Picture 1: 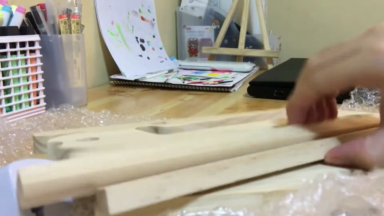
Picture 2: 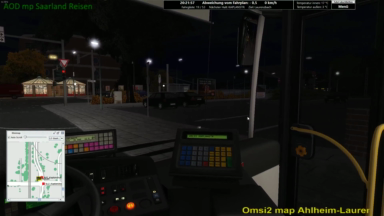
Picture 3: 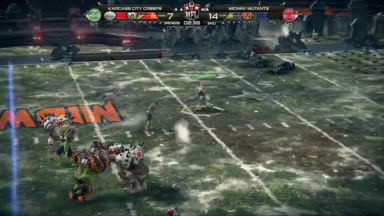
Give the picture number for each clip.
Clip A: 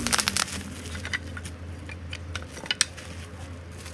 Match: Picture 1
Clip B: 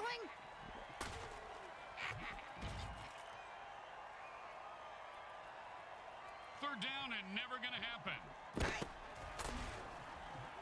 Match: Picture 3